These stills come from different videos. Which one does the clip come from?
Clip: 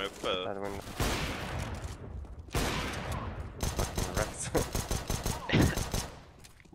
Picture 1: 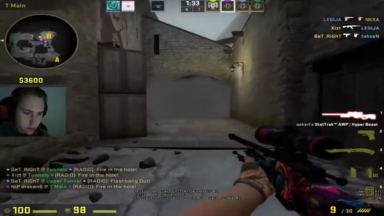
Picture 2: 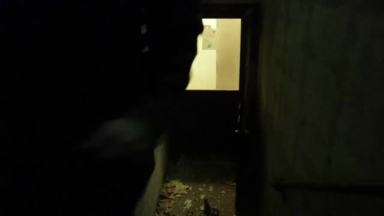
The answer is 1